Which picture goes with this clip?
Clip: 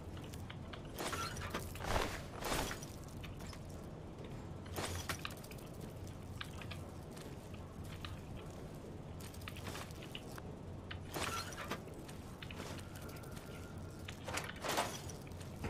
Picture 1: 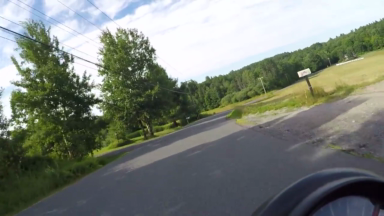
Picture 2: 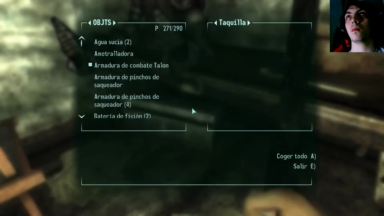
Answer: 2